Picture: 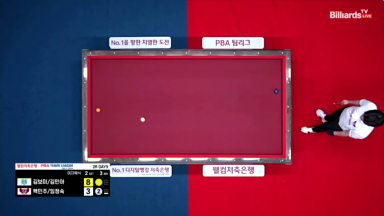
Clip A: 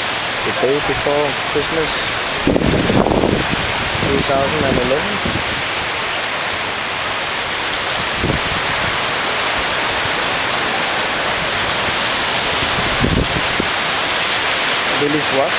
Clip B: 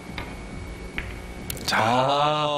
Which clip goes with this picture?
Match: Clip B